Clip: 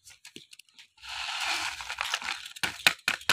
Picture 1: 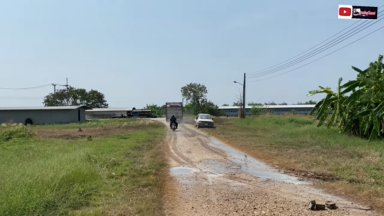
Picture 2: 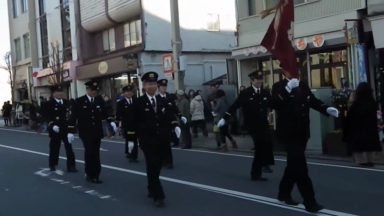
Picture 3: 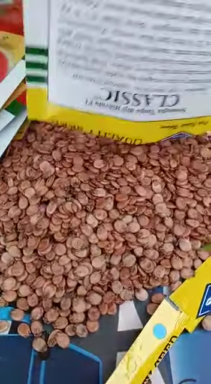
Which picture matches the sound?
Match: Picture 3